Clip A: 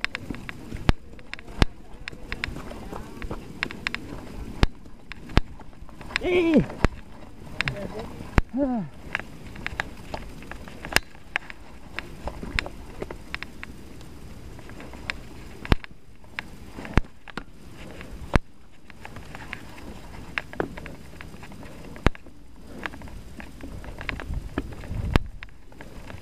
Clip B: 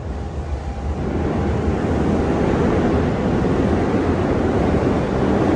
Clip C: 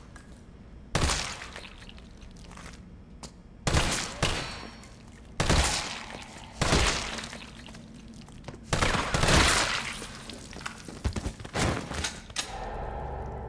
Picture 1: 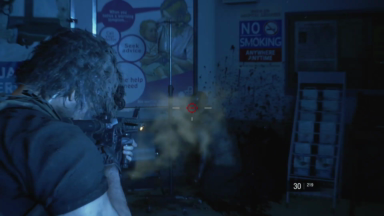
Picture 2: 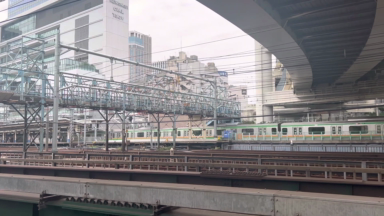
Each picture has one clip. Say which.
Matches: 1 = C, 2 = B